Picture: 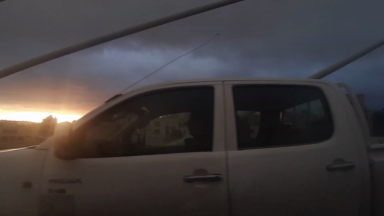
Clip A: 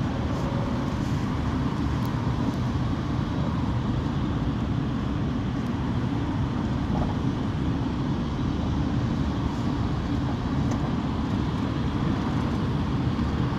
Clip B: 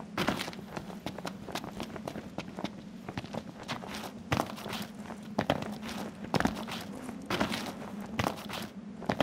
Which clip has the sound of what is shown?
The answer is A